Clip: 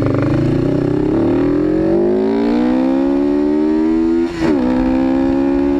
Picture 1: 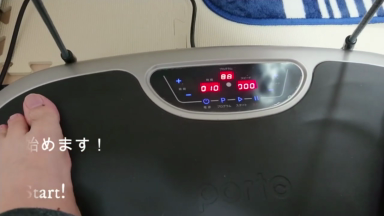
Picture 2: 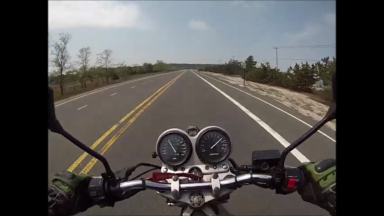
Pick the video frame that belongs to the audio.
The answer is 2